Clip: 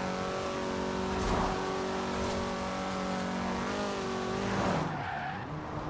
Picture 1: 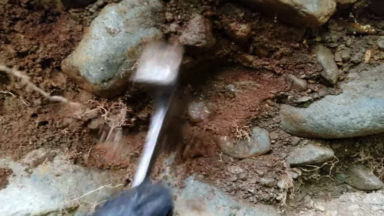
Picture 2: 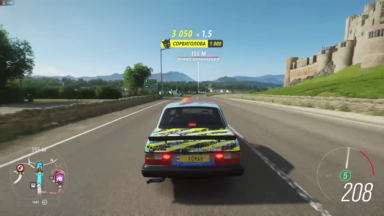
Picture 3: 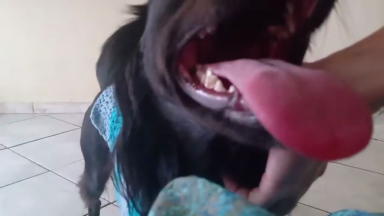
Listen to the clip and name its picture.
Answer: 2